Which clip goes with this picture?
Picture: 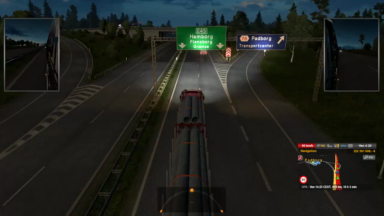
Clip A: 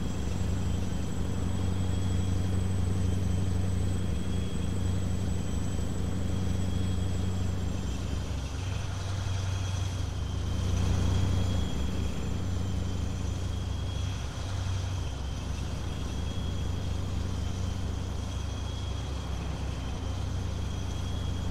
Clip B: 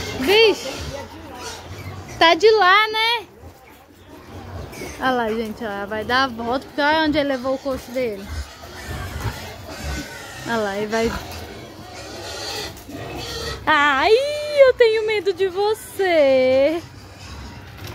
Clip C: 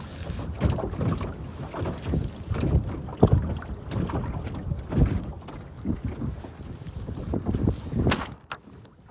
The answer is A